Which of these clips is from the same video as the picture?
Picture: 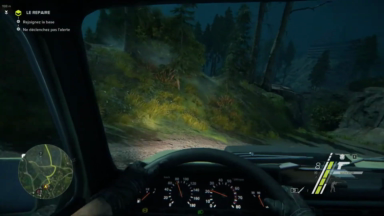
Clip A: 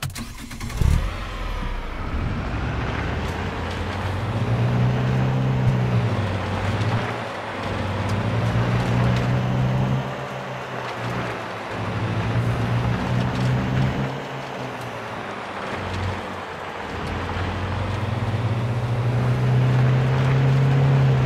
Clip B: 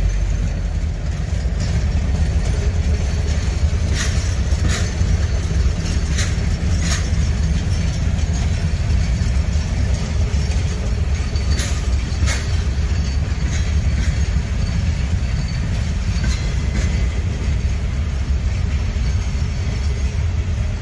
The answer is A